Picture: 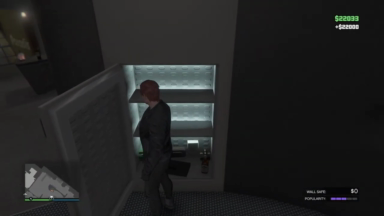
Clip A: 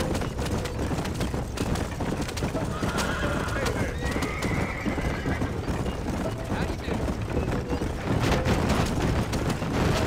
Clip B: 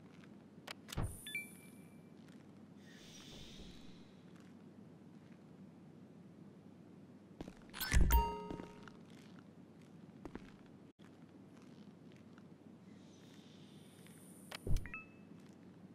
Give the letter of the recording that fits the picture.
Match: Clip B